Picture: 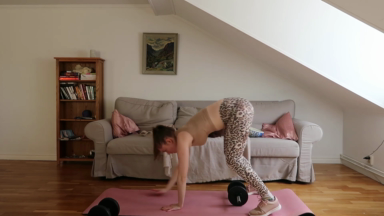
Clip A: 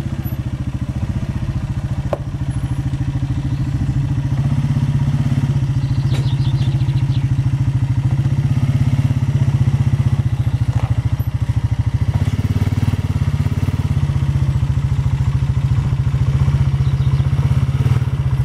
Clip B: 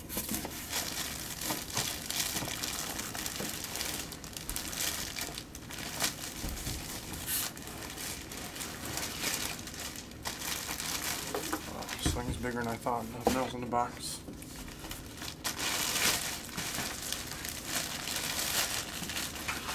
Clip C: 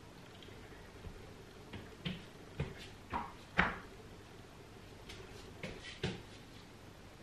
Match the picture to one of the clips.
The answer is C